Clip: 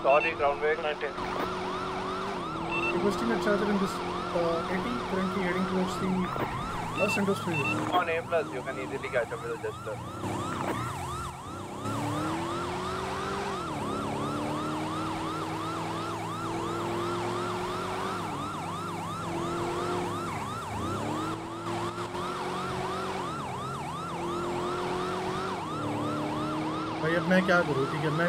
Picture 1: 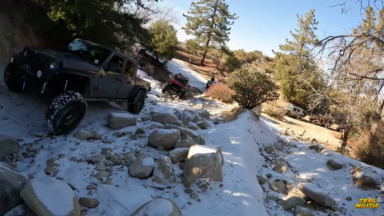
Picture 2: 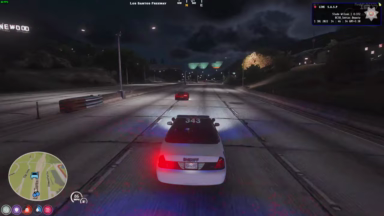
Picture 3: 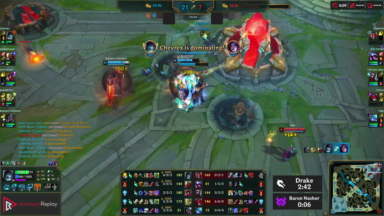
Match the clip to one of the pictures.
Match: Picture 2